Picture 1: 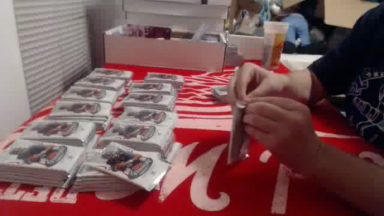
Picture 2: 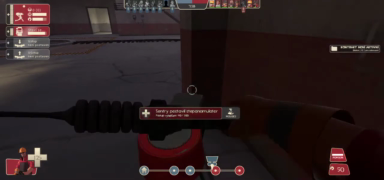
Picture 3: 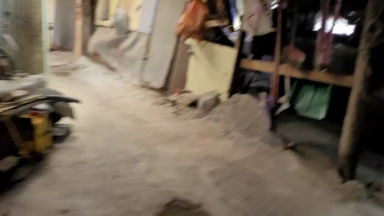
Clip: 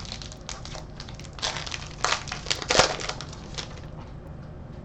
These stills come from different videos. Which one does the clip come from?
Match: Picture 1